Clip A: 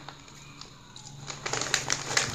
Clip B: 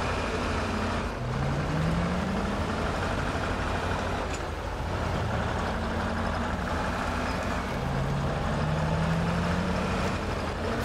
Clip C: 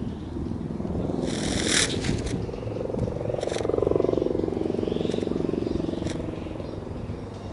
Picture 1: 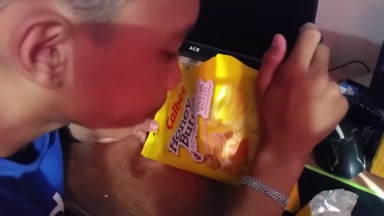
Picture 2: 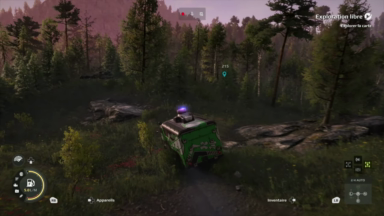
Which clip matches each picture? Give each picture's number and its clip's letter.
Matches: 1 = A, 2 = B